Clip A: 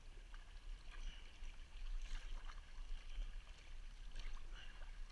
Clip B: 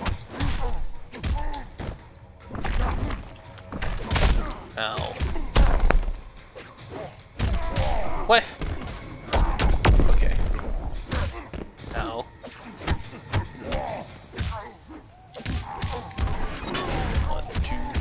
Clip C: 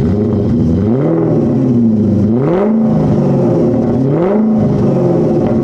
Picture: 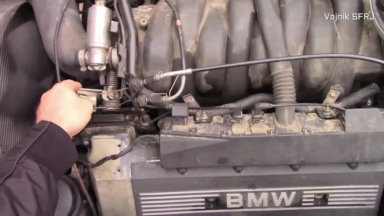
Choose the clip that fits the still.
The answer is C